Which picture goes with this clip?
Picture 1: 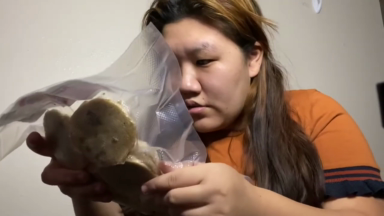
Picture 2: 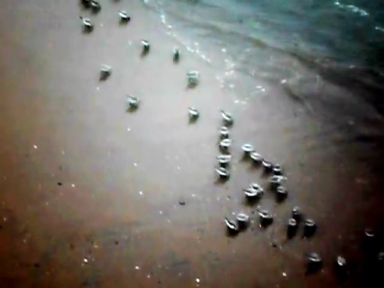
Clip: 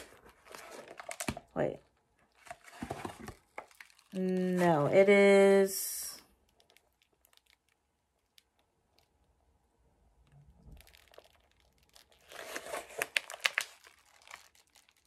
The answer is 1